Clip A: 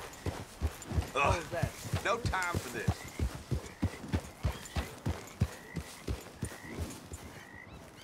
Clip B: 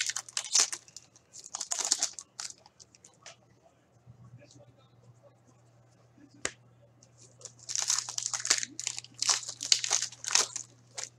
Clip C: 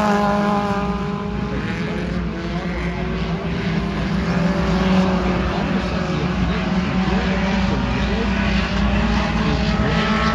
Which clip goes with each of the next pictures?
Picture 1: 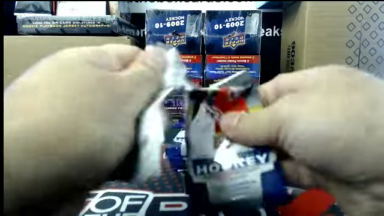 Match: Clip B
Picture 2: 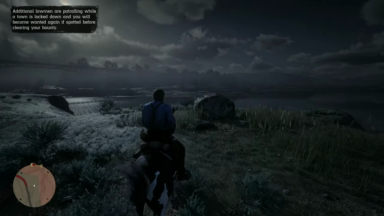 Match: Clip A